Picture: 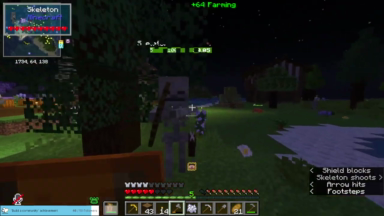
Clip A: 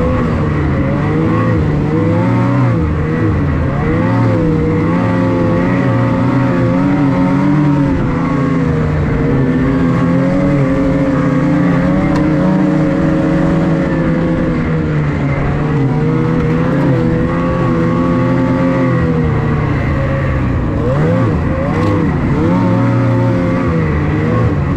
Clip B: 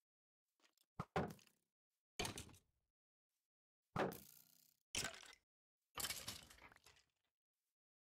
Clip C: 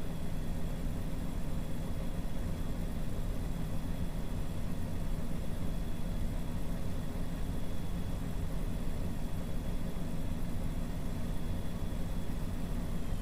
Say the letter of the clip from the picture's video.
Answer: B